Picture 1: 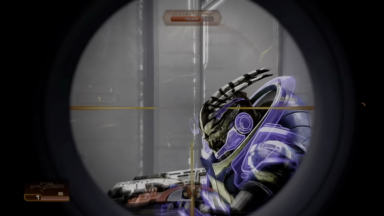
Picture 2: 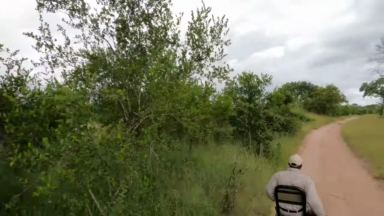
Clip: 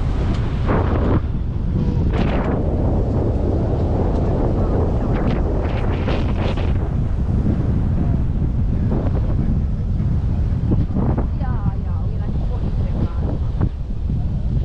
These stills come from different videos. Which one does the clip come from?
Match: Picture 2